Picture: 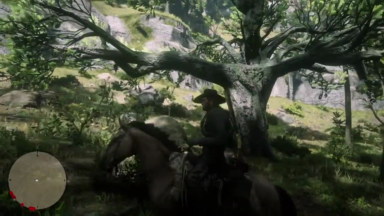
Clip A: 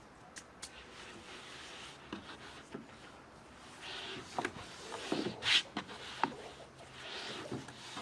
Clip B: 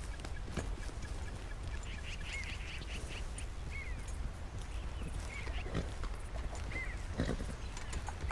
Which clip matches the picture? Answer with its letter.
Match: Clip B